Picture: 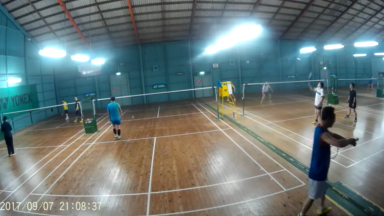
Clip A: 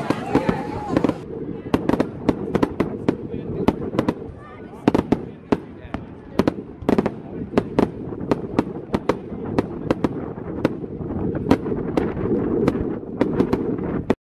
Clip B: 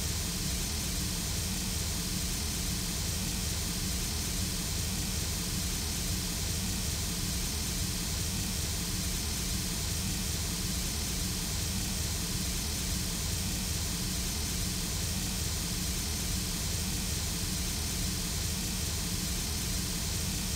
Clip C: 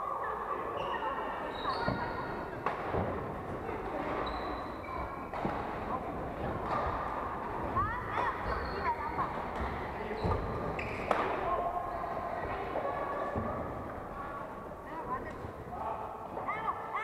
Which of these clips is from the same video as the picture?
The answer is C